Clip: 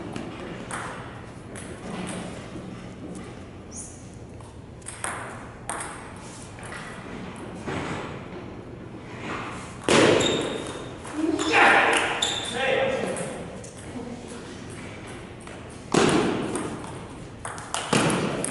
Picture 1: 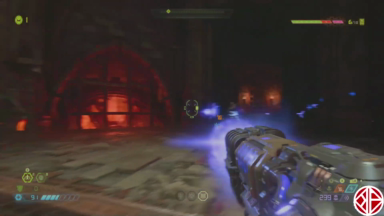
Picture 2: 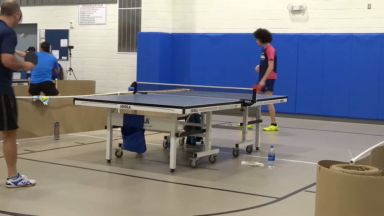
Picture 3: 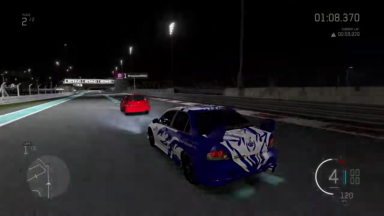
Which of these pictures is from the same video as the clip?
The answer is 2